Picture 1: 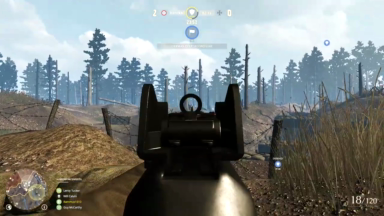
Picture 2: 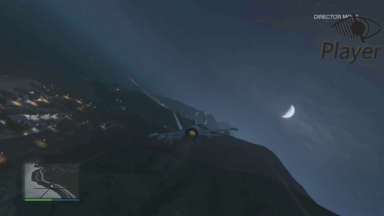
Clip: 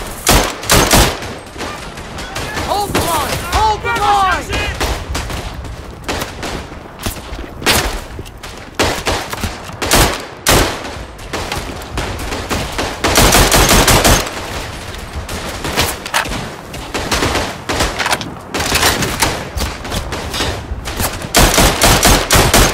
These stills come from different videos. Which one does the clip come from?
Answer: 1